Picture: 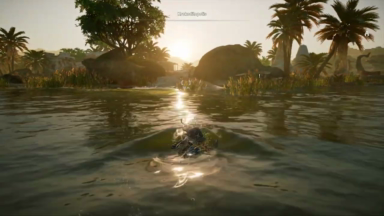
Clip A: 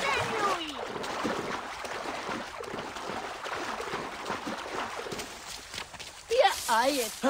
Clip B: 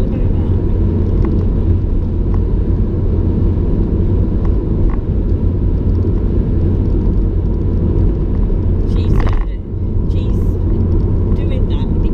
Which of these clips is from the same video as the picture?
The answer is A